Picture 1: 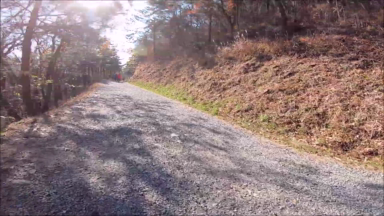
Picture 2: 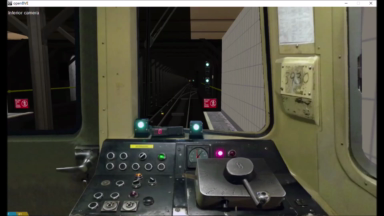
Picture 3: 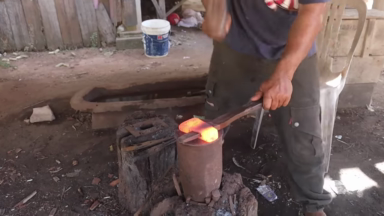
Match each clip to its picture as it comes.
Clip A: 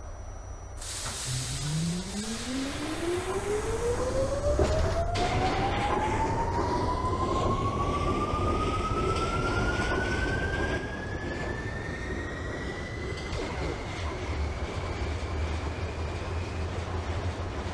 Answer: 2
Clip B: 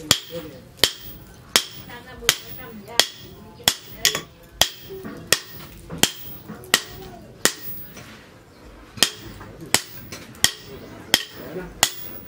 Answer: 3